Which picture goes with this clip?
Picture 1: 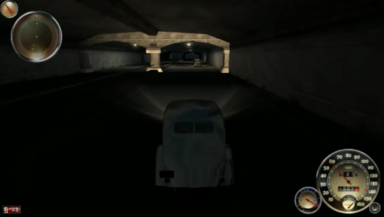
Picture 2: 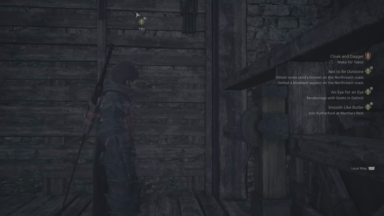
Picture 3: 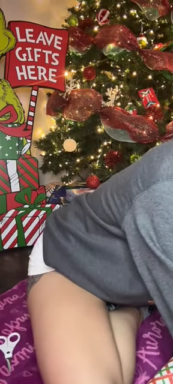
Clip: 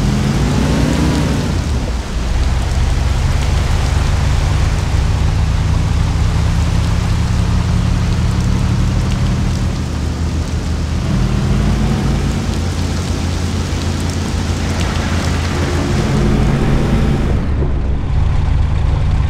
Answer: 1